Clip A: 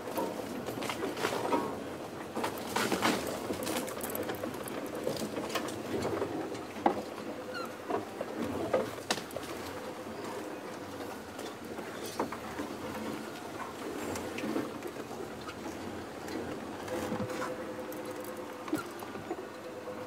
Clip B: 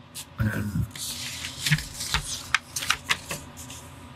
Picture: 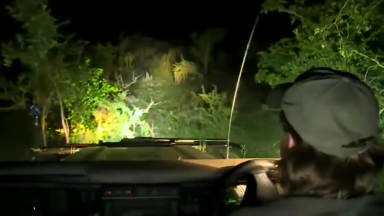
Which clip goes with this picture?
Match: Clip A